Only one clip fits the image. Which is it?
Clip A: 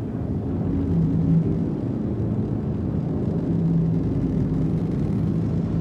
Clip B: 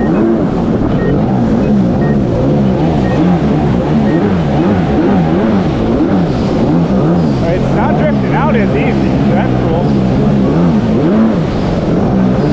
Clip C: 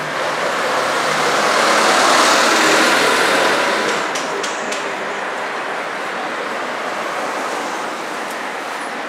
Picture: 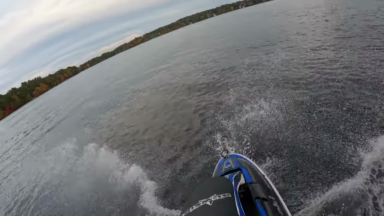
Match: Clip B